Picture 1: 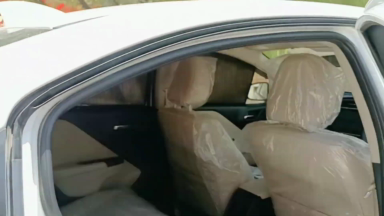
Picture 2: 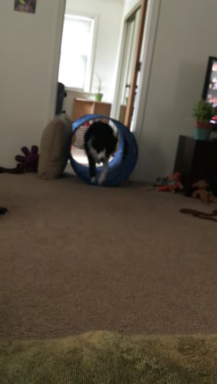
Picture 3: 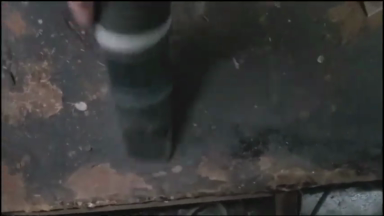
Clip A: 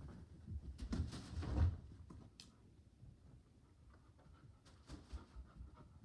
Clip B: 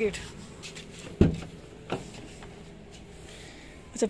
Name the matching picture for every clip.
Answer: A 2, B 1